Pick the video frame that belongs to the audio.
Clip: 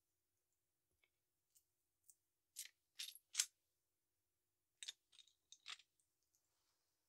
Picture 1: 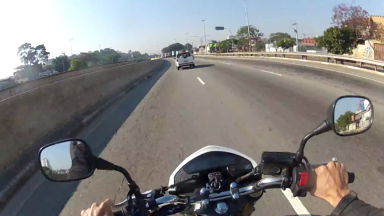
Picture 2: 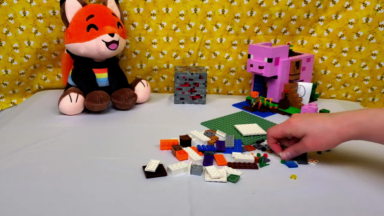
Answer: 2